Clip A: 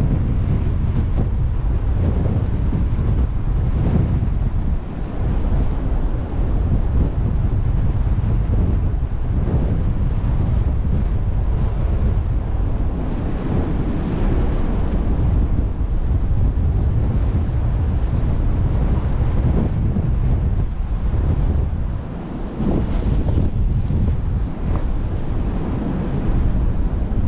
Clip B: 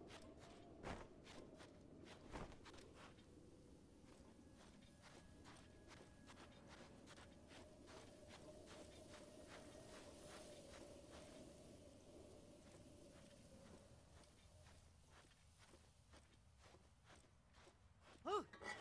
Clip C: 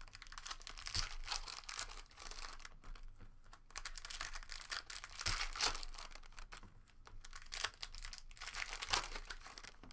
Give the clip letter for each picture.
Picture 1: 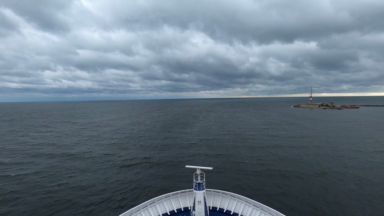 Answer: A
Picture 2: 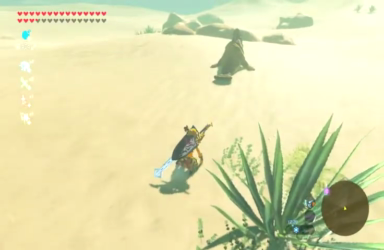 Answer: B